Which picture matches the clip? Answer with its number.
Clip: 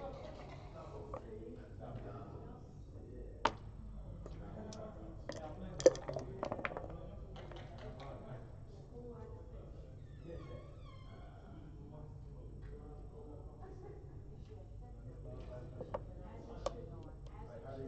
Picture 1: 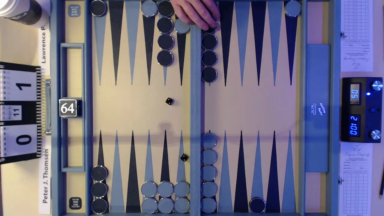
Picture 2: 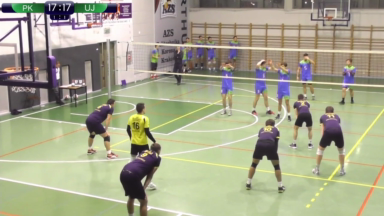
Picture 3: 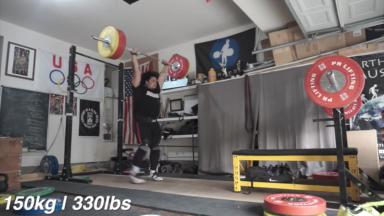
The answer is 1